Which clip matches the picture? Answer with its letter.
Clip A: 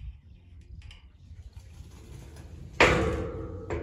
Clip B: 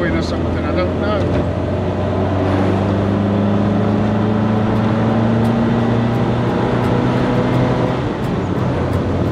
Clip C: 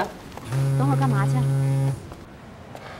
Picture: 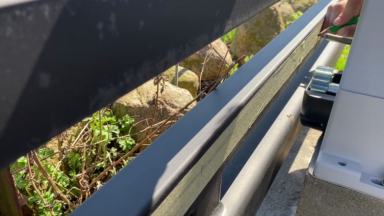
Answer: A